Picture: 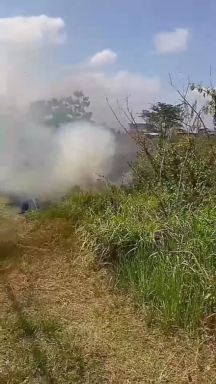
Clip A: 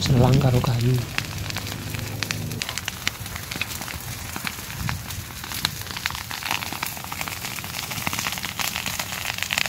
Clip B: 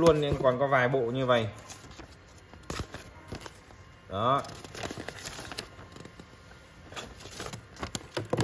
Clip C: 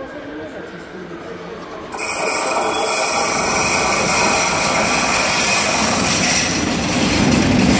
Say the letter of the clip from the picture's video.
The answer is A